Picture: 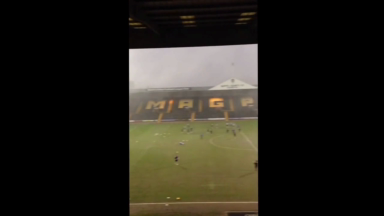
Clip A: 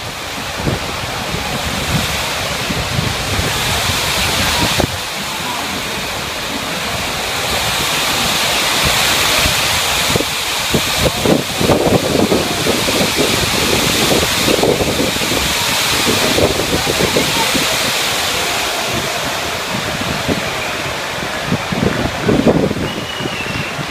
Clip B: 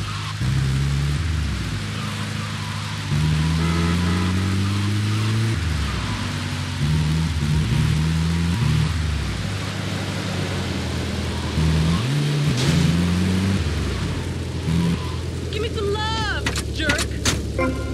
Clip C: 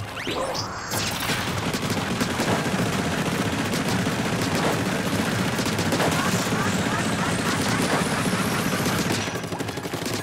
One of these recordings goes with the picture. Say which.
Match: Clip A